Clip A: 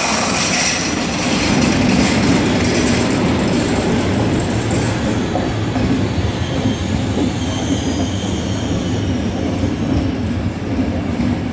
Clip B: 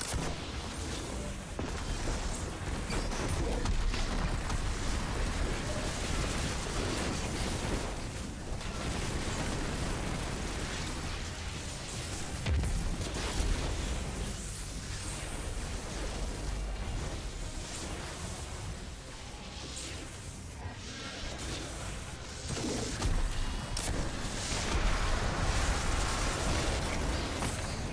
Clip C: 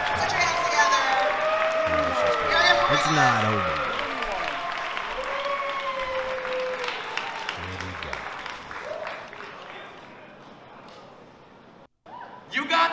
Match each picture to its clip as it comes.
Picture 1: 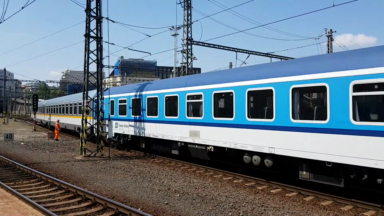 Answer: A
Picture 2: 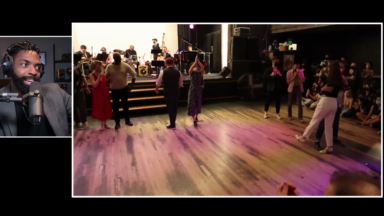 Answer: C